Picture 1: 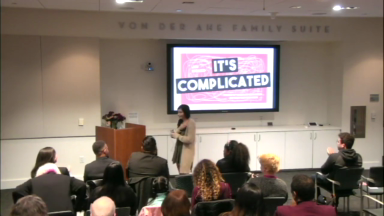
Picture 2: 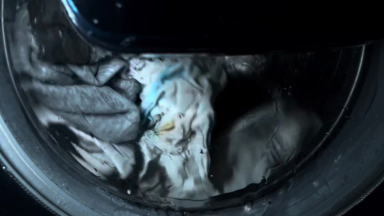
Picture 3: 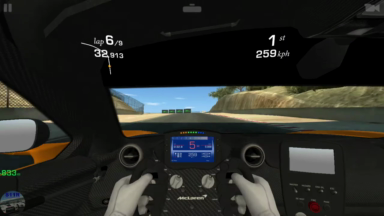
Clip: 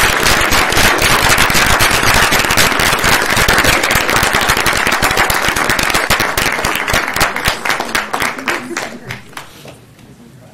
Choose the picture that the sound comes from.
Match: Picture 1